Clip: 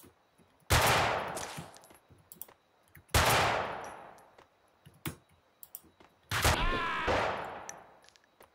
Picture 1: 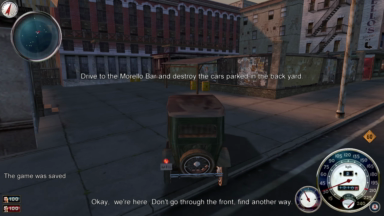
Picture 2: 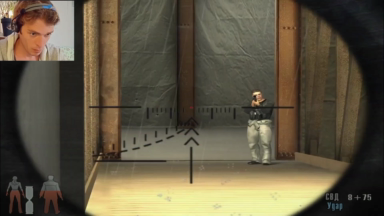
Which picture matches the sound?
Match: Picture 2